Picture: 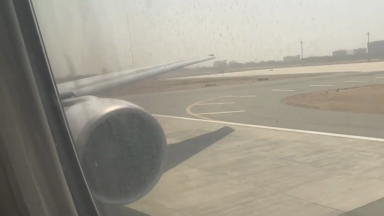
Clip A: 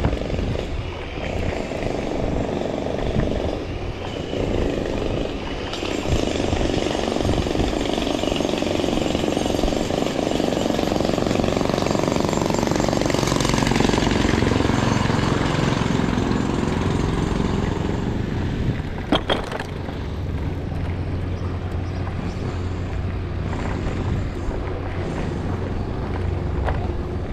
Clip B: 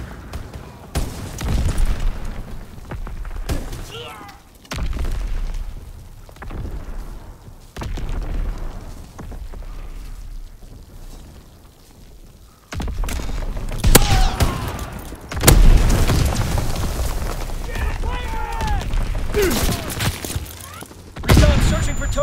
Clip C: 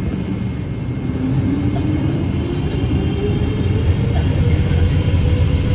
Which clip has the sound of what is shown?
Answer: C